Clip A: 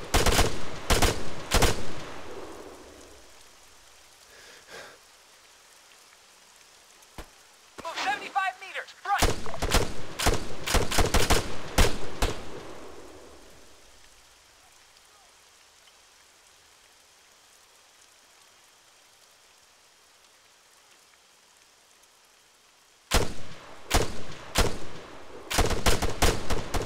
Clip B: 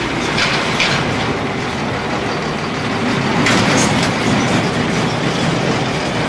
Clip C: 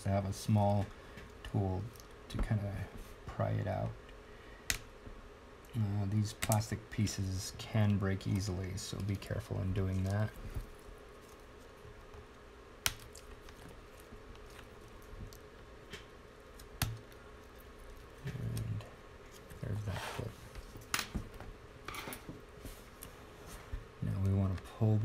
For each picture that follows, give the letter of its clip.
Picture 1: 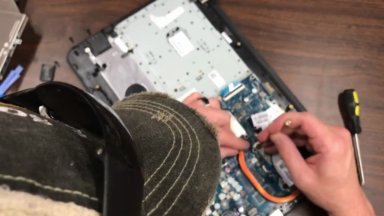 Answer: C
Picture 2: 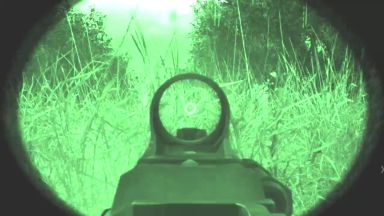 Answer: A